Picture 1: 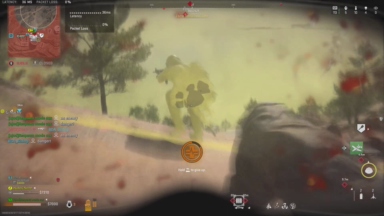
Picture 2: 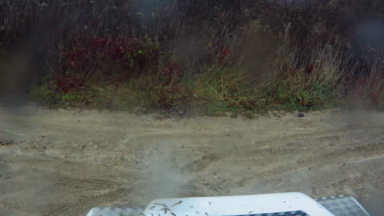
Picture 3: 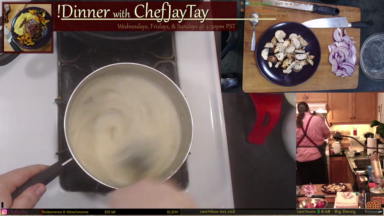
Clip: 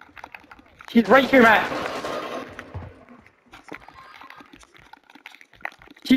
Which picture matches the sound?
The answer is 1